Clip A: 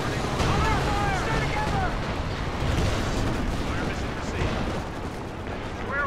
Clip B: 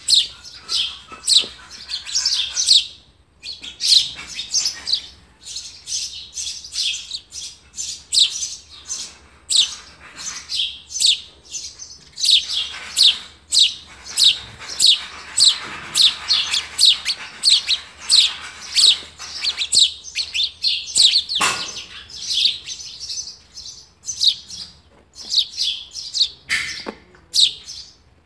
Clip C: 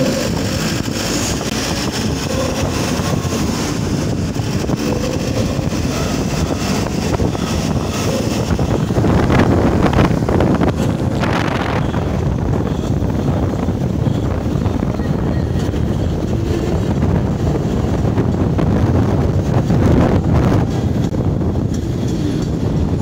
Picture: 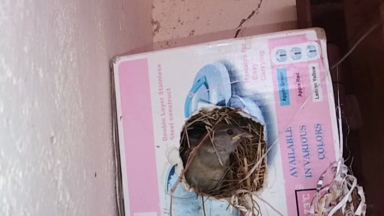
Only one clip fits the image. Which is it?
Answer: B